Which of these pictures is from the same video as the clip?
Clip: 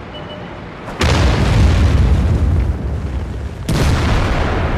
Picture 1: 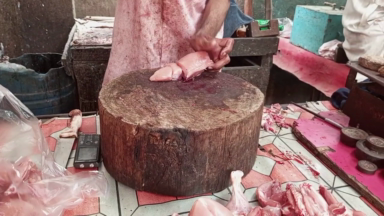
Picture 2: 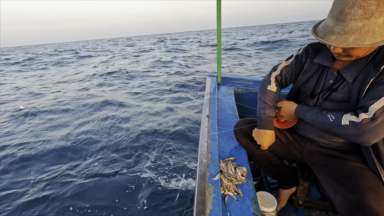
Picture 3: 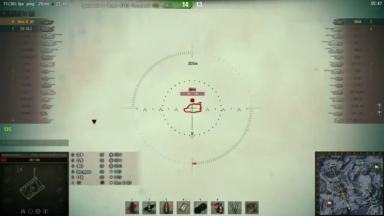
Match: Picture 3